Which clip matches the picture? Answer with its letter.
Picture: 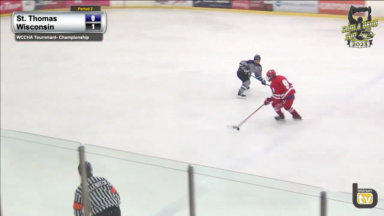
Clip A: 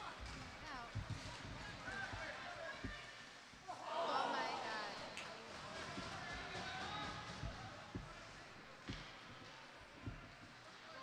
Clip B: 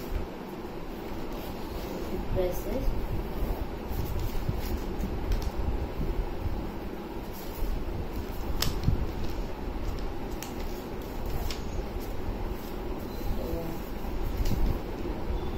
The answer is A